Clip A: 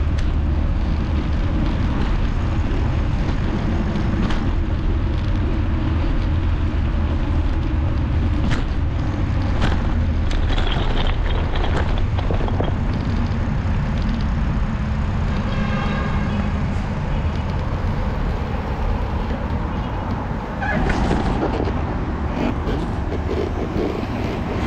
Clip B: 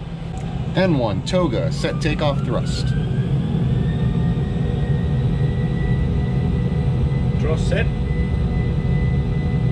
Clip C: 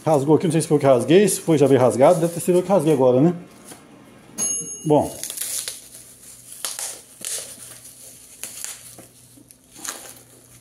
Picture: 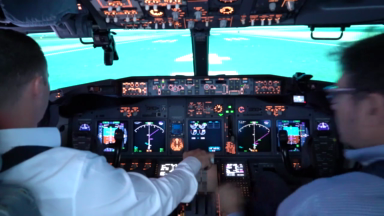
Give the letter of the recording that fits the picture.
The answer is B